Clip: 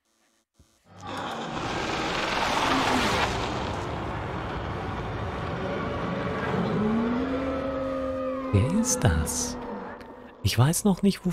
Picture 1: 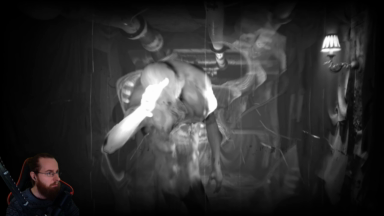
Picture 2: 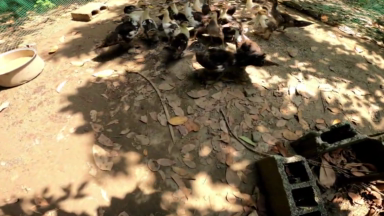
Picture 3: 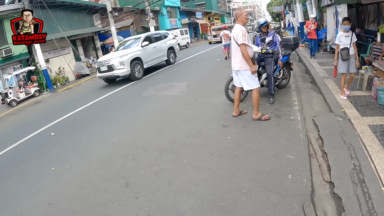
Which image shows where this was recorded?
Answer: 1